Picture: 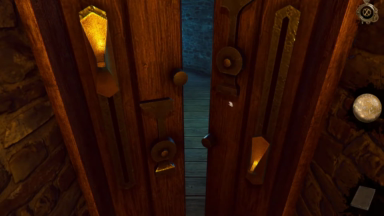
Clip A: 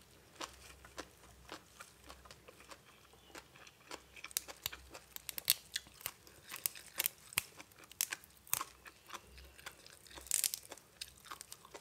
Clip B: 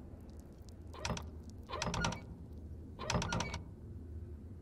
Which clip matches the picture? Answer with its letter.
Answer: B